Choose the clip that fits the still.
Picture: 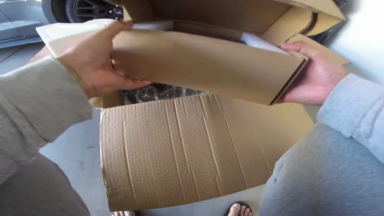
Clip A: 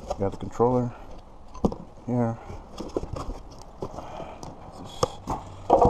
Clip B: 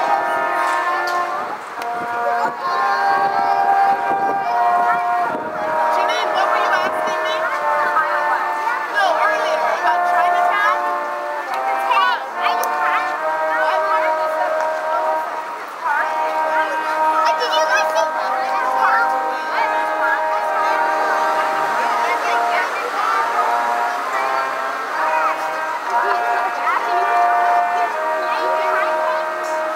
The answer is A